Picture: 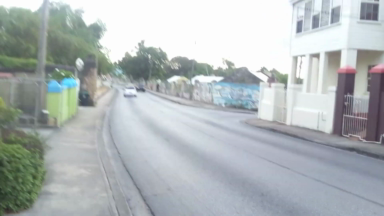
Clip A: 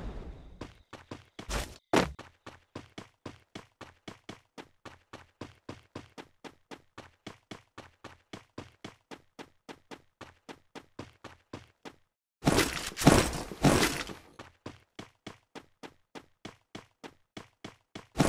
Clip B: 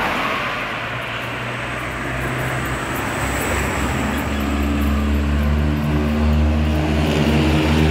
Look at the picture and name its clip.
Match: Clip B